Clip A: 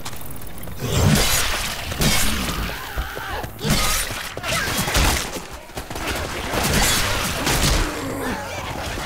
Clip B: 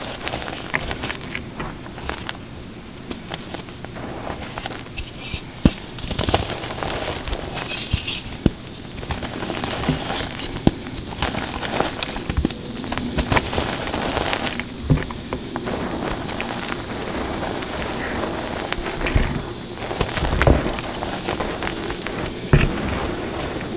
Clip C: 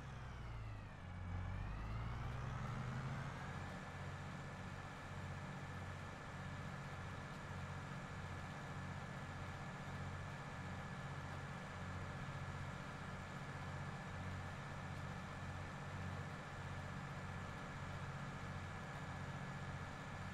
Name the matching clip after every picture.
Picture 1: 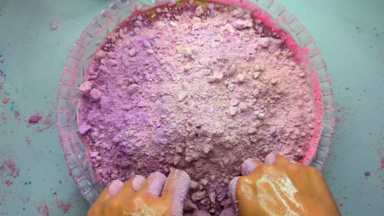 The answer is B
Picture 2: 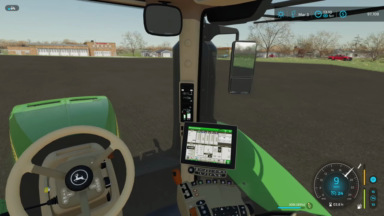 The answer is C